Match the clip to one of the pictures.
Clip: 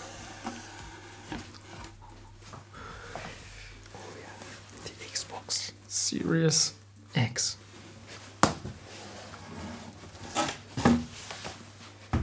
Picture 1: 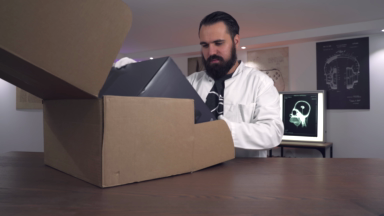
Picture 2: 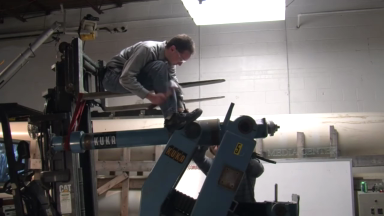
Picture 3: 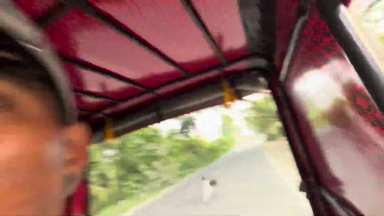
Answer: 1